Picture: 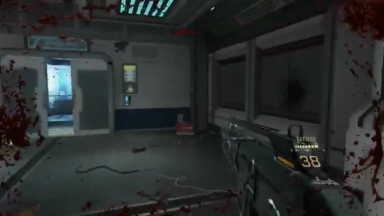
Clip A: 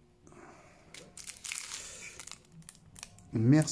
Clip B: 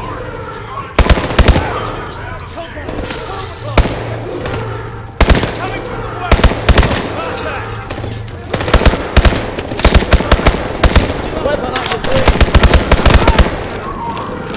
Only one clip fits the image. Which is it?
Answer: B